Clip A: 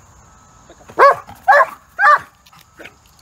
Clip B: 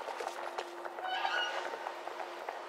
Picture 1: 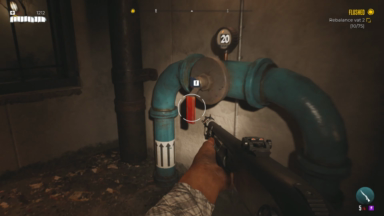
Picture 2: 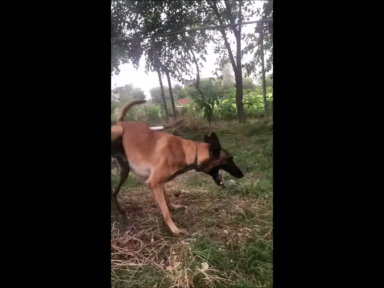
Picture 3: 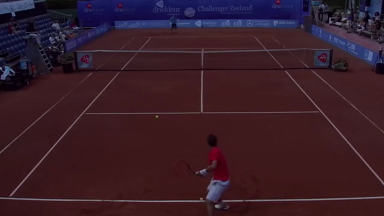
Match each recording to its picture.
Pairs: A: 2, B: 1